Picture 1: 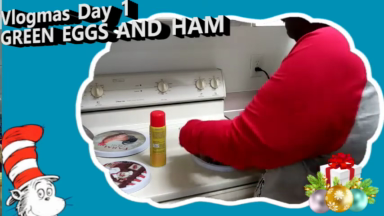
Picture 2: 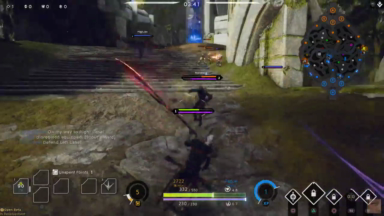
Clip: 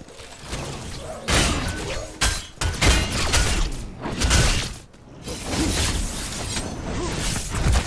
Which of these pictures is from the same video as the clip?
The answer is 2